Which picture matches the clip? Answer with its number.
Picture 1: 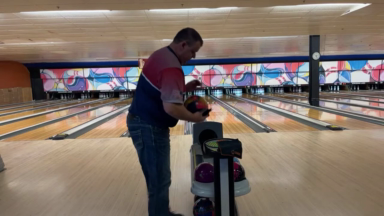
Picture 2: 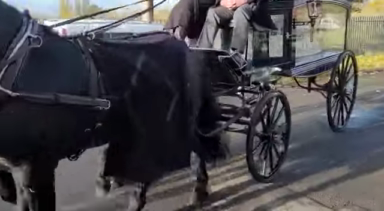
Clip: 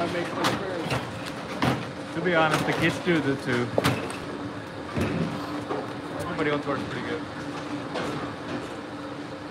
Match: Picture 1